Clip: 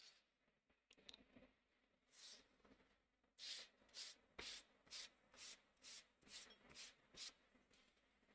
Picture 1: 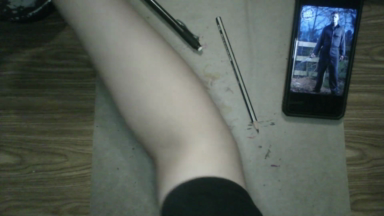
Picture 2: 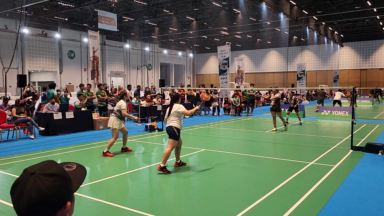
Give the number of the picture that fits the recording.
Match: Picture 1